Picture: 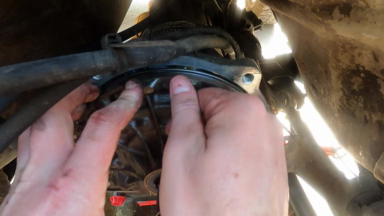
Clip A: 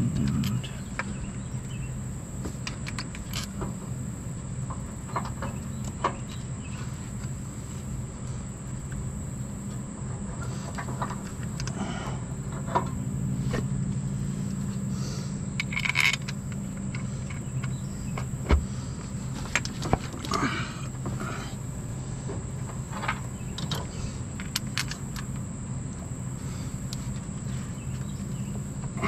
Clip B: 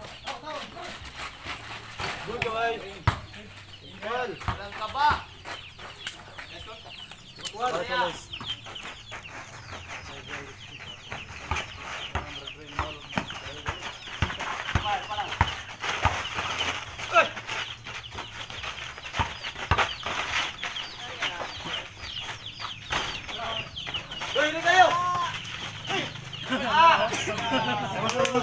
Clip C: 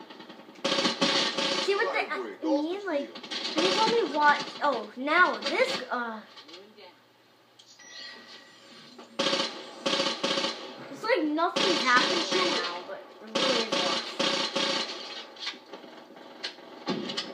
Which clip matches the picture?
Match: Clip A